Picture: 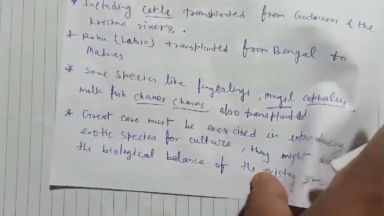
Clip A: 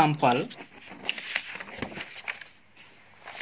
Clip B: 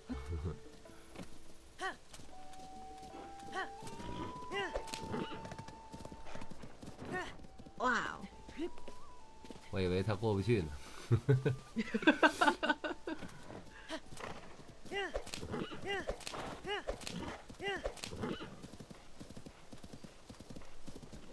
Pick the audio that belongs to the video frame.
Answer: A